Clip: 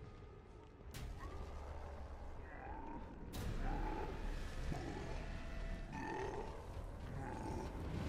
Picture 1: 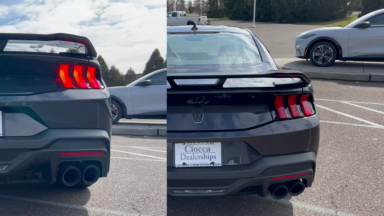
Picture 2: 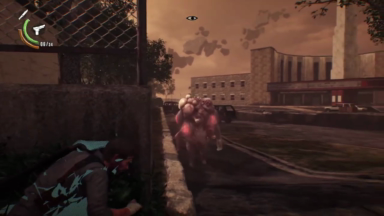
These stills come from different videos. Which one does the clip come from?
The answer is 2